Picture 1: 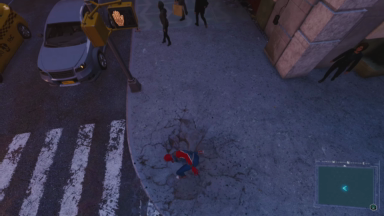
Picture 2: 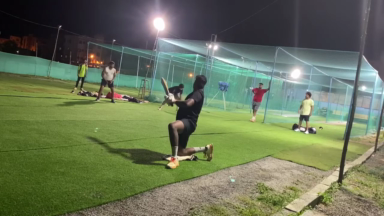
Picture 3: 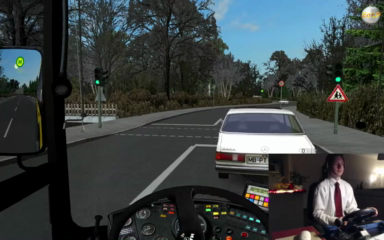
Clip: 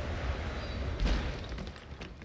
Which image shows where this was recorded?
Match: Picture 1